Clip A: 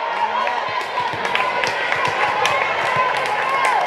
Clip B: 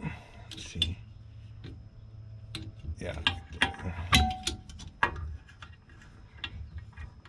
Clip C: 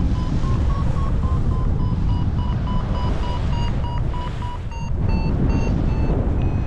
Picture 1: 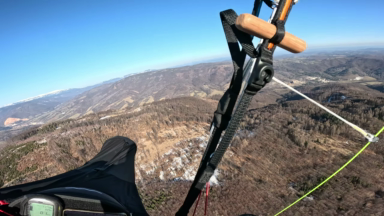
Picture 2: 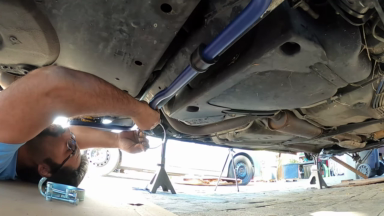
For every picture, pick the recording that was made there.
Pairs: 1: C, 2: B